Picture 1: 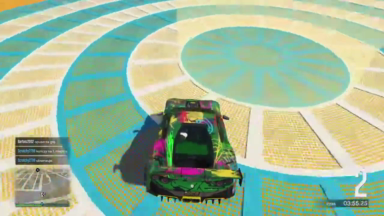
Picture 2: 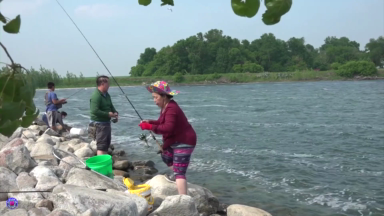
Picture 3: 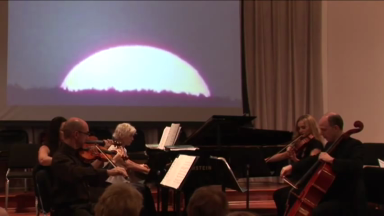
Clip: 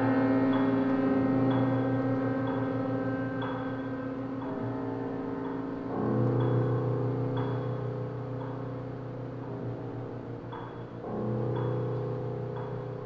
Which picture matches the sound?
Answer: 3